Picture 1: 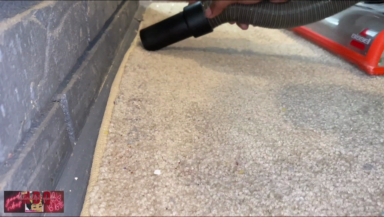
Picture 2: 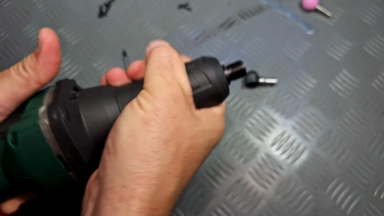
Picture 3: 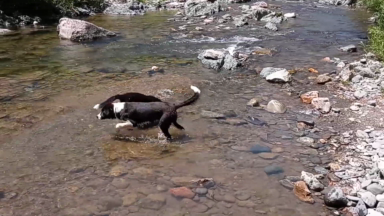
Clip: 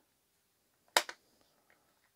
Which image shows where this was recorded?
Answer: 2